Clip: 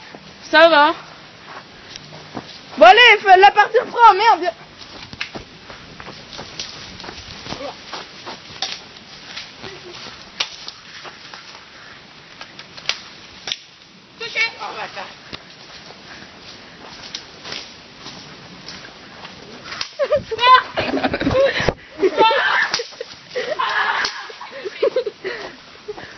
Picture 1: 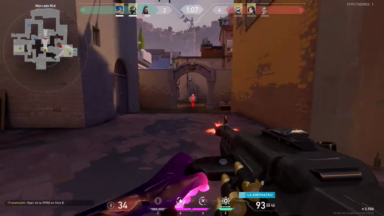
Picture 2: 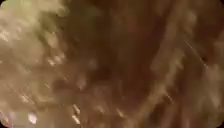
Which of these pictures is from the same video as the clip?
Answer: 2